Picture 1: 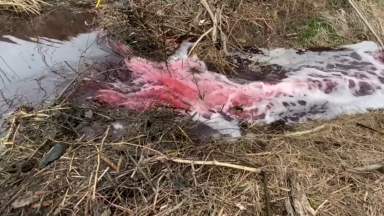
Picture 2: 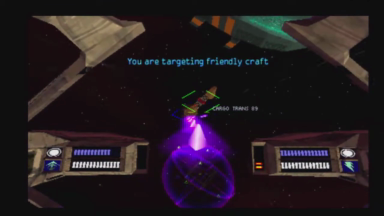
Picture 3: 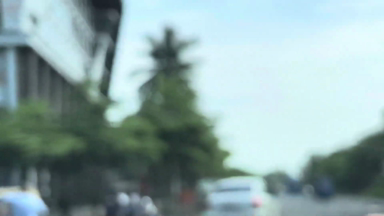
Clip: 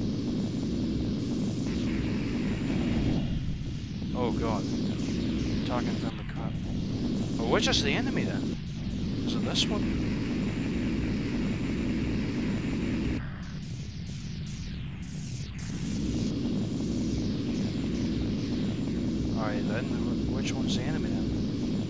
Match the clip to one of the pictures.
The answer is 2